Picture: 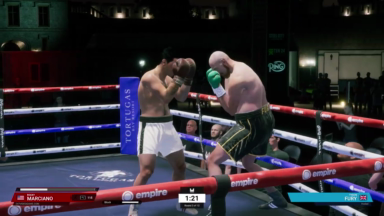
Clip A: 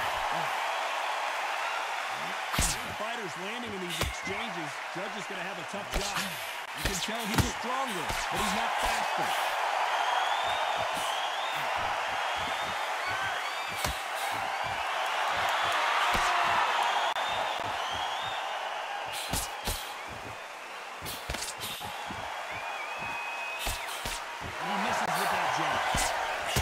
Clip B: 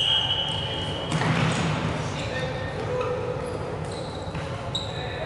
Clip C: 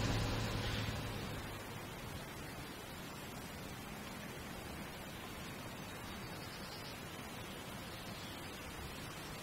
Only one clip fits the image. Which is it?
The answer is A